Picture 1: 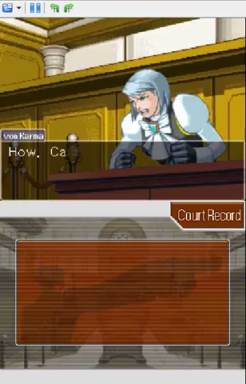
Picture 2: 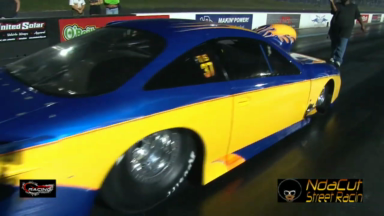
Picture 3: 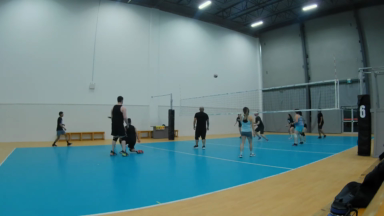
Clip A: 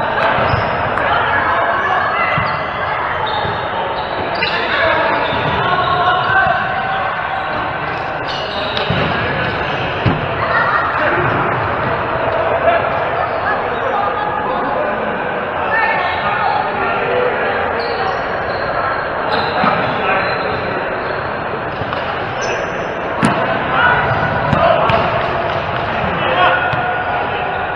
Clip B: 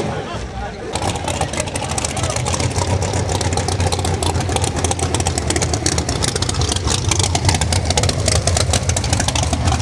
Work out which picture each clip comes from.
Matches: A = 3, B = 2